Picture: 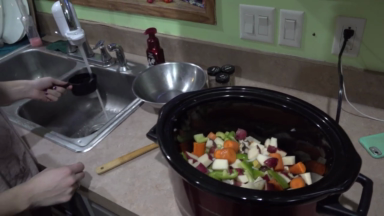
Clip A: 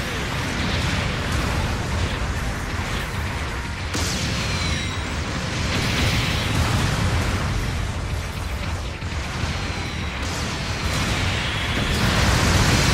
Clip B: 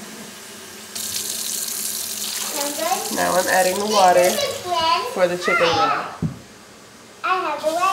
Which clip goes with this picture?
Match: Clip B